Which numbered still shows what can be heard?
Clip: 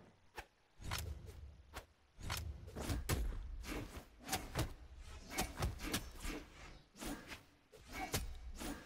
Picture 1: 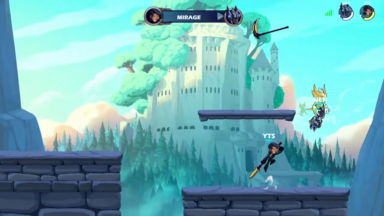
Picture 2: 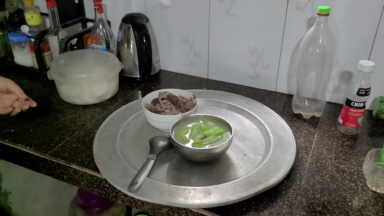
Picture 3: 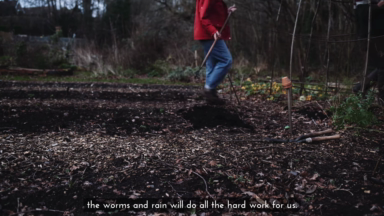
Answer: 1